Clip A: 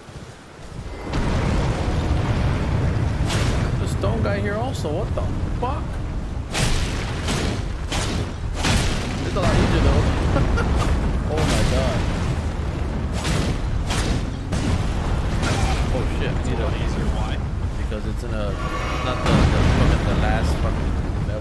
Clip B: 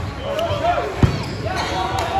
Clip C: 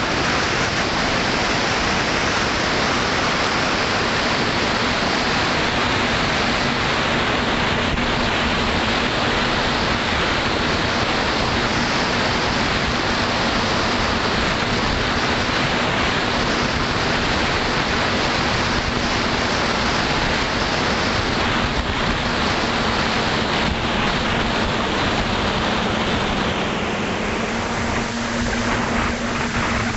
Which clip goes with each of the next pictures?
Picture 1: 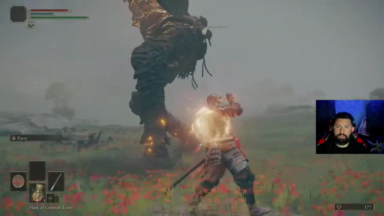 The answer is A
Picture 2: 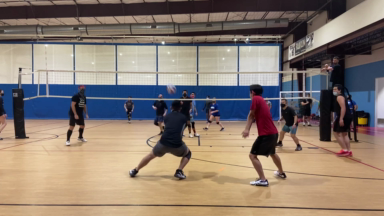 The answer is B